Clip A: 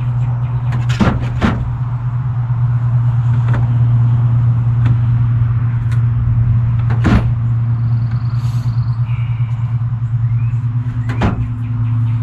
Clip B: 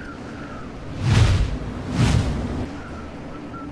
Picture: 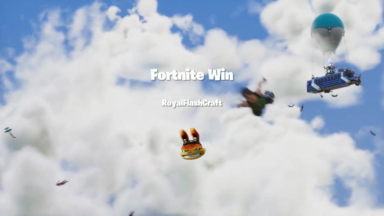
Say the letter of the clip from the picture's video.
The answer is B